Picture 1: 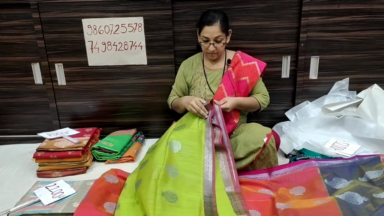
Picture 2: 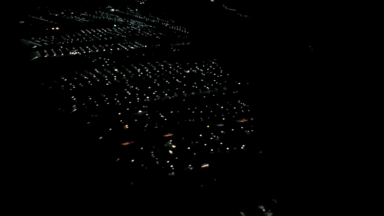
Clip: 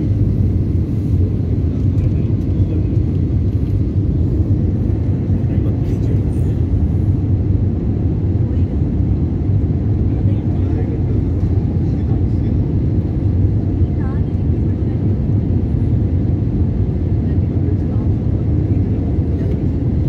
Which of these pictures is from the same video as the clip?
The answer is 2